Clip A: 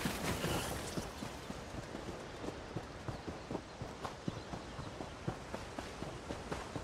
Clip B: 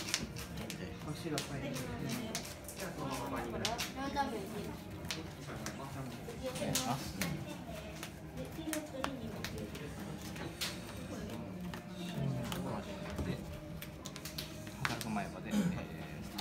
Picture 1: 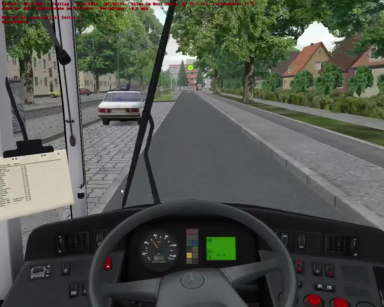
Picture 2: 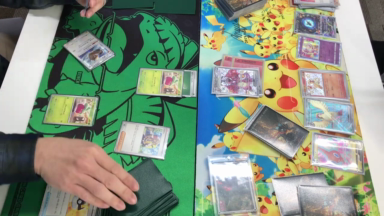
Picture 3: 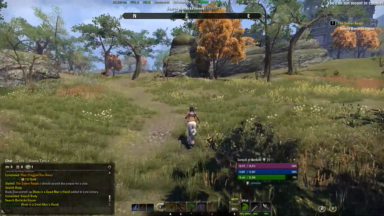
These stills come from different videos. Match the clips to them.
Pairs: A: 3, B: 2